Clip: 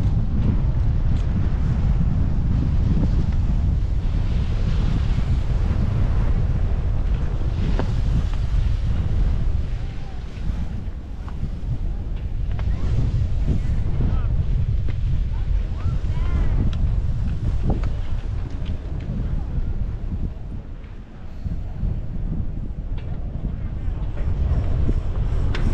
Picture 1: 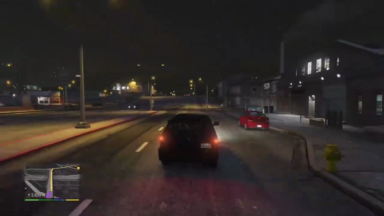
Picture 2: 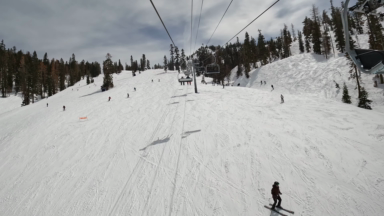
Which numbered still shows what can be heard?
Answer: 2